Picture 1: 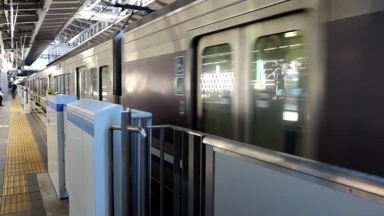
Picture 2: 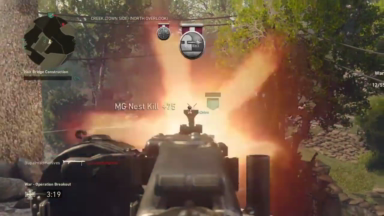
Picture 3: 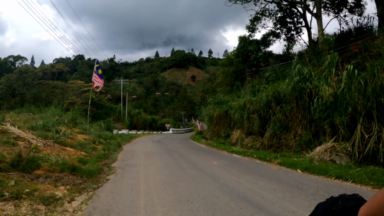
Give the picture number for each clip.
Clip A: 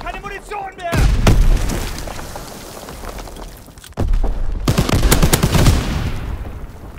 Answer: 2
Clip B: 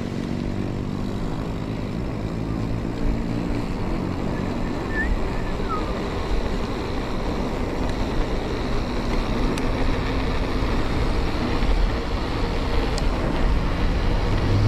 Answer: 3